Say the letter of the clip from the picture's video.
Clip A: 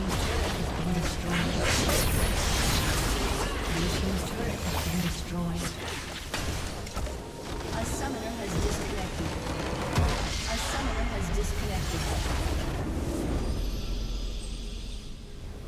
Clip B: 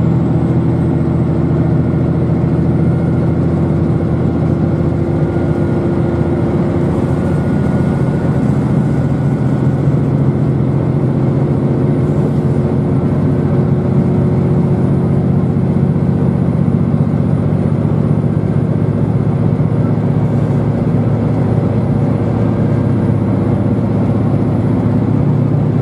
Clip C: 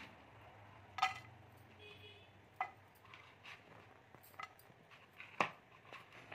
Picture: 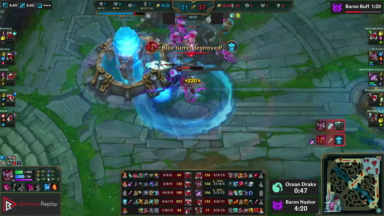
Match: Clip A